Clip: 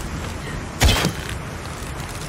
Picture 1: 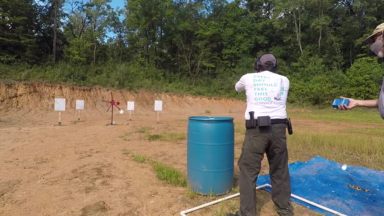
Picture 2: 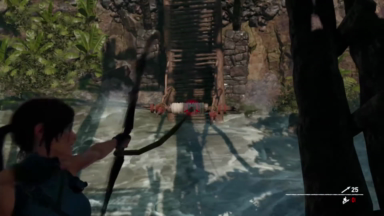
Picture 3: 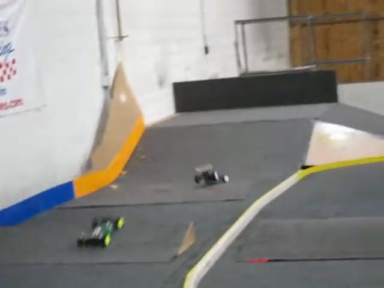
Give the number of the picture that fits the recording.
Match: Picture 2